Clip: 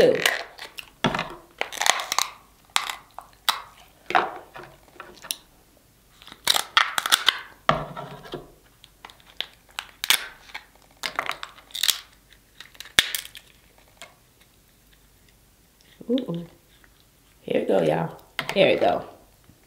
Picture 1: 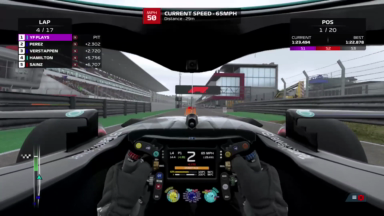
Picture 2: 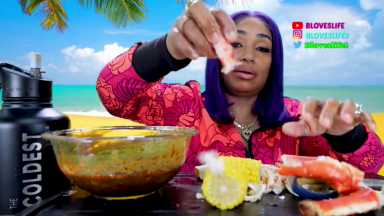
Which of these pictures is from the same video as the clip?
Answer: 2